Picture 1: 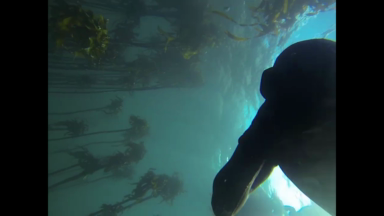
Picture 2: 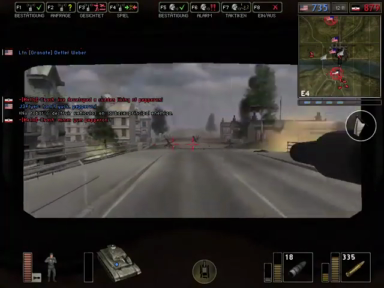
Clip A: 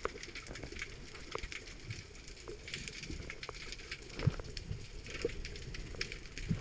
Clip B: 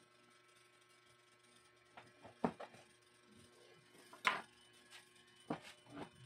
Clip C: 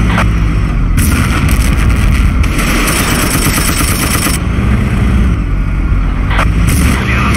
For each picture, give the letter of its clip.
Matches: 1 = A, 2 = C